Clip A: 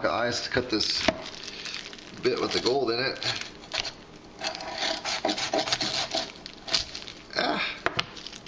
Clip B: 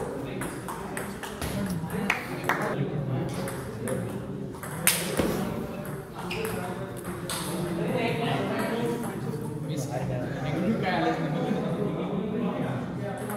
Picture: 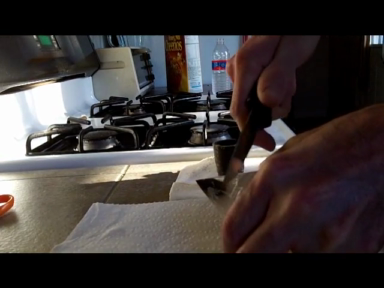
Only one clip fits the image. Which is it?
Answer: A